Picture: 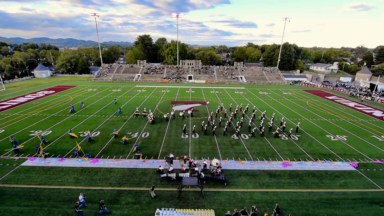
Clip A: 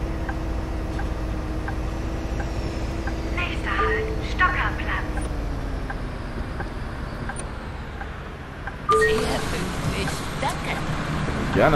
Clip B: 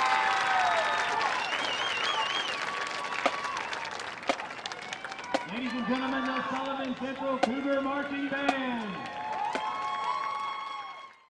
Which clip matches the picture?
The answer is B